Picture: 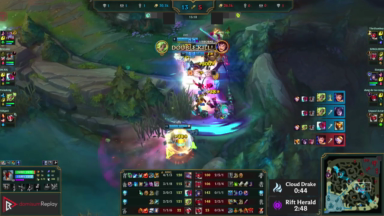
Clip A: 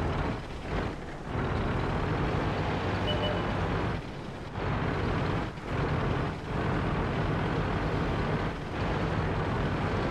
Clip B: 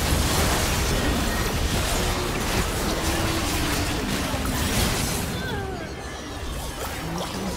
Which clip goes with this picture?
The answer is B